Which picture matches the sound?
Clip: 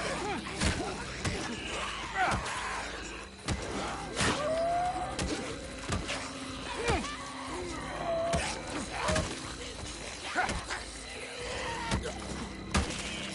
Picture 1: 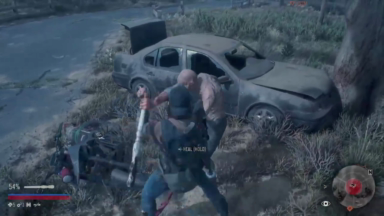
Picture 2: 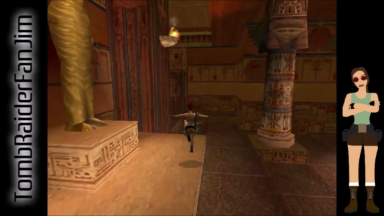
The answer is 1